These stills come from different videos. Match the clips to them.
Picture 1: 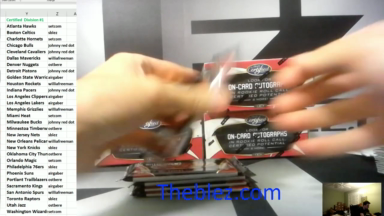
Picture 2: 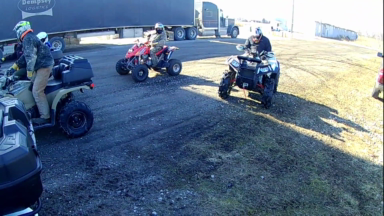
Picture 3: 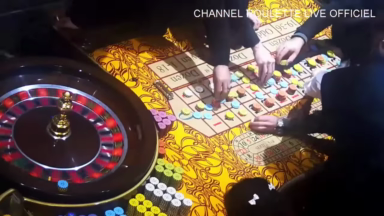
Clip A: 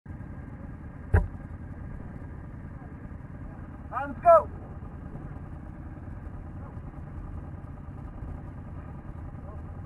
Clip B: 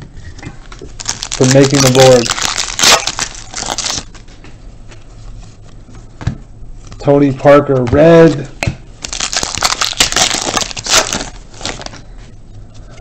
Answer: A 2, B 1